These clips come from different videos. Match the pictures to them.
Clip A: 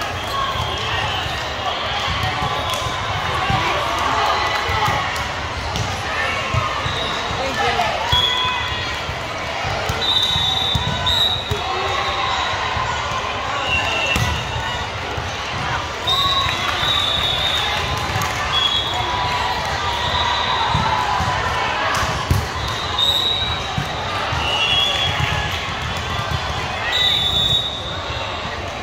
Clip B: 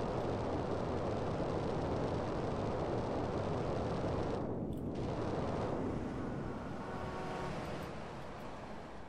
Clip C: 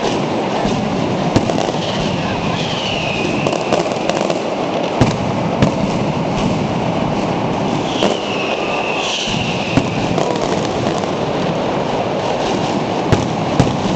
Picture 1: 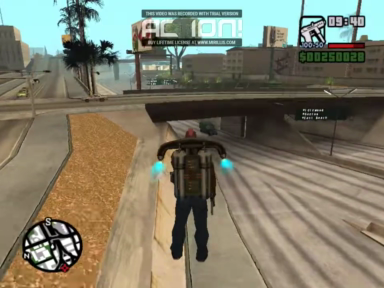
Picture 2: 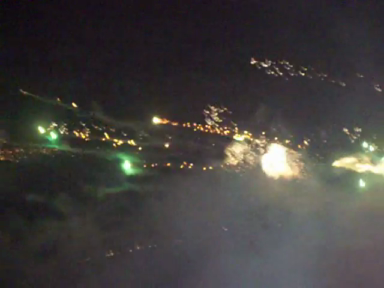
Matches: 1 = B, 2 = C